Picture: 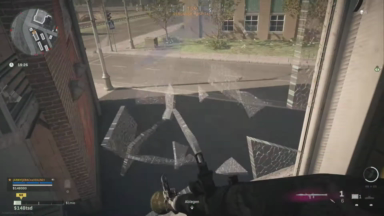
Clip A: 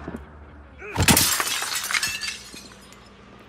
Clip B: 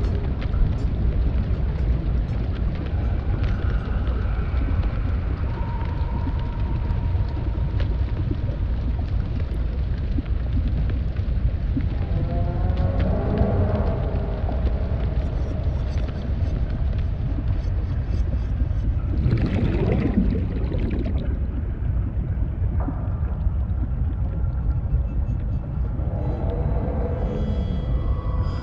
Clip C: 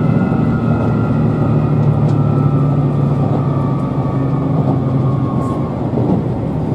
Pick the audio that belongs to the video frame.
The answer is A